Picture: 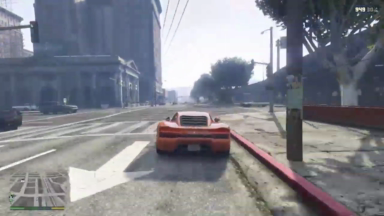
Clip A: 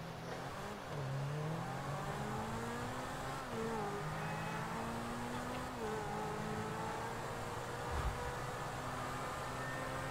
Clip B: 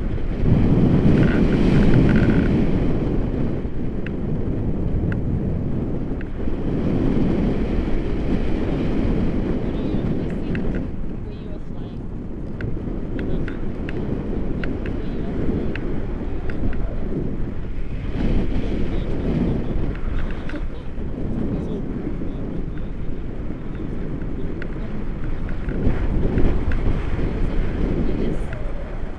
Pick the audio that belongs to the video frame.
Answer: A